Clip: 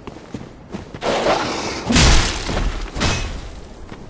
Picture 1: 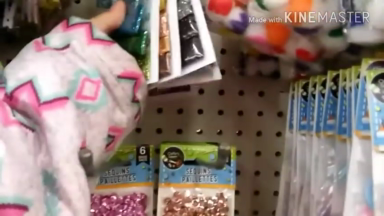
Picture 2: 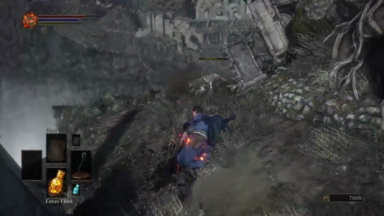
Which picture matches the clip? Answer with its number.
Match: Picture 2